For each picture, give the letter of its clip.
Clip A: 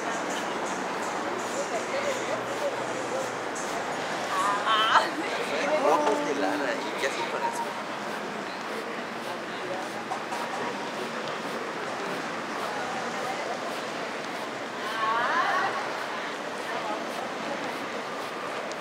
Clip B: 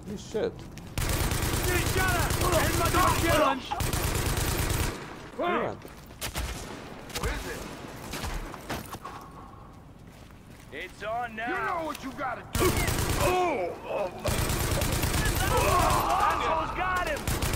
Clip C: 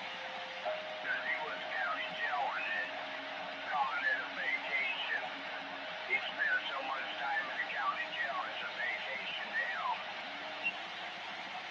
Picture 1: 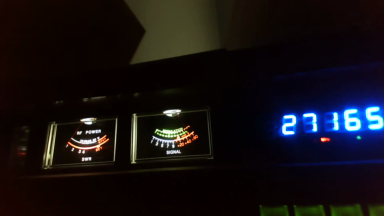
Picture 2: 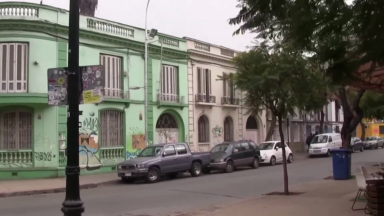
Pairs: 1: C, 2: A